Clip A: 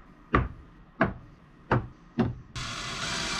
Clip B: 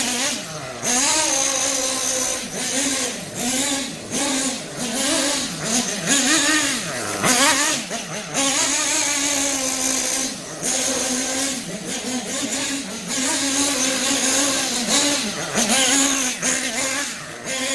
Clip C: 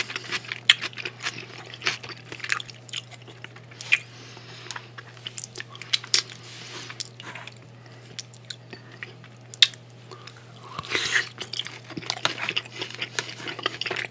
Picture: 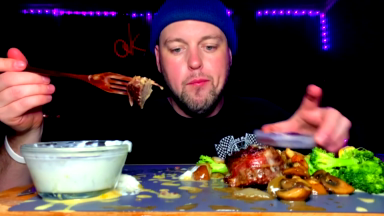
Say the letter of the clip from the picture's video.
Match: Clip C